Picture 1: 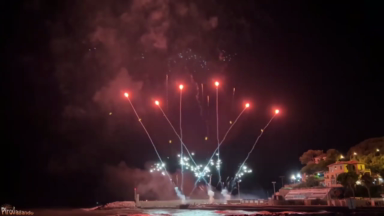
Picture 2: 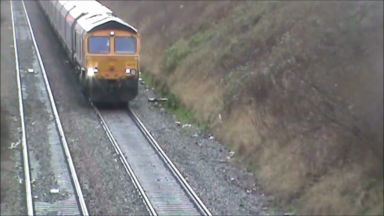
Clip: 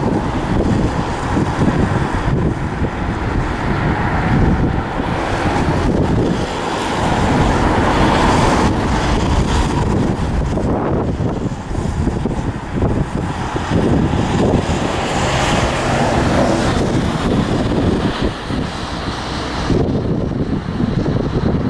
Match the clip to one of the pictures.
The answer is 2